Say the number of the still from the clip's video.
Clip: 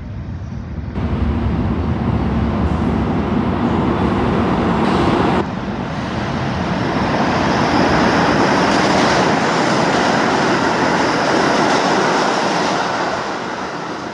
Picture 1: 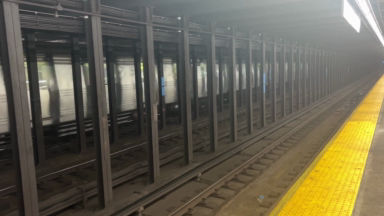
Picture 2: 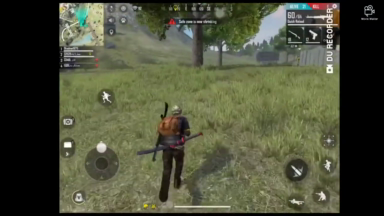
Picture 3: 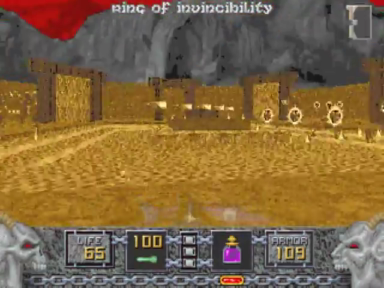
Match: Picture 1